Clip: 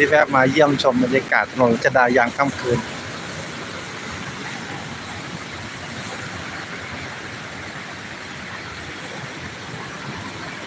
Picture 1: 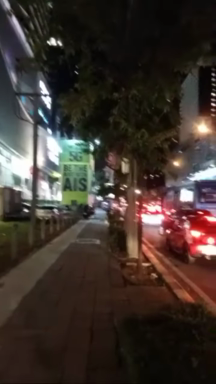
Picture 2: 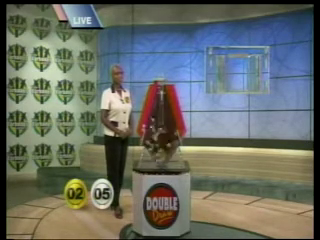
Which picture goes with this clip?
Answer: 1